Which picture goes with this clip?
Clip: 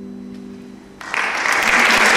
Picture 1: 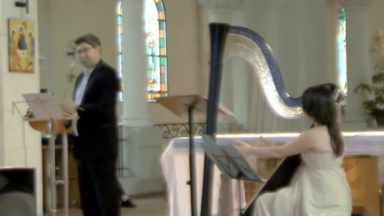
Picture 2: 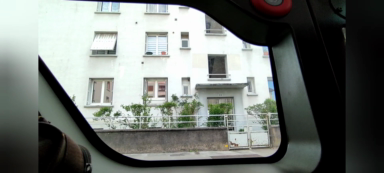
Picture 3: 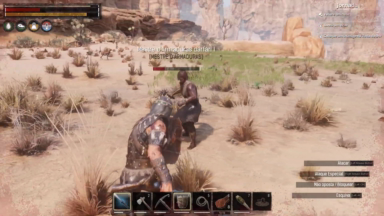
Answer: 1